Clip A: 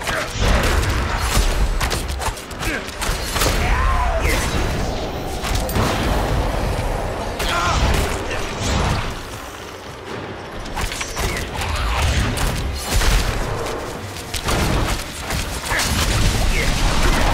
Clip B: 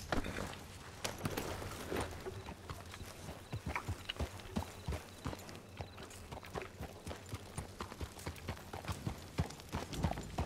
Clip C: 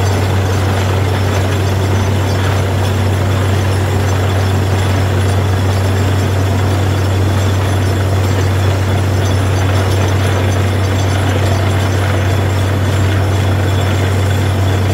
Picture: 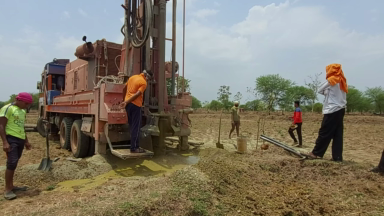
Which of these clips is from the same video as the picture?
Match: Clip C